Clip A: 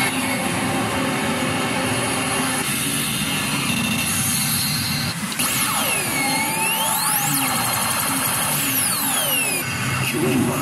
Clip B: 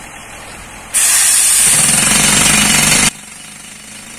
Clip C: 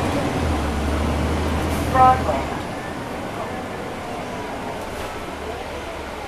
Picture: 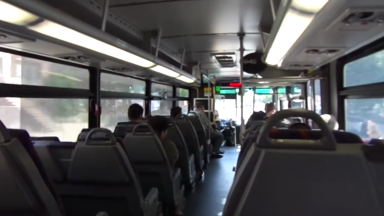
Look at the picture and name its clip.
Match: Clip C